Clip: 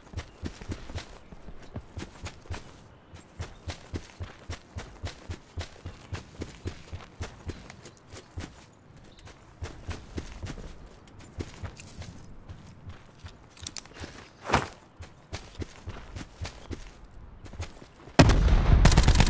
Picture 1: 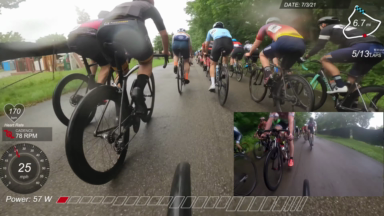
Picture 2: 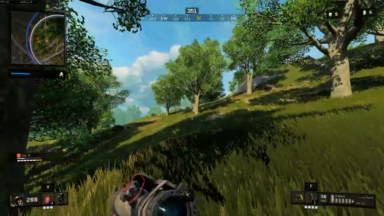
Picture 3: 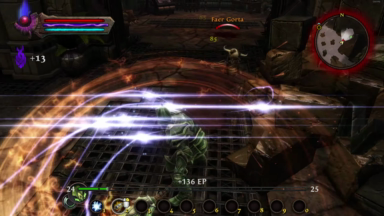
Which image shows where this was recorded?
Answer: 2